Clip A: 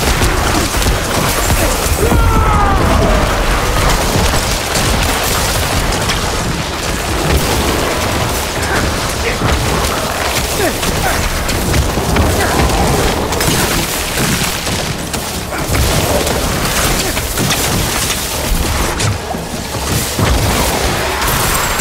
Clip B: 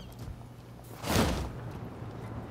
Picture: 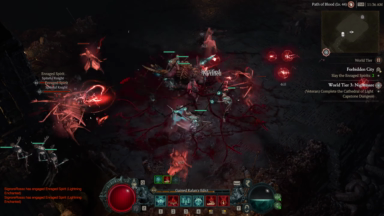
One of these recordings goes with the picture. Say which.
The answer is A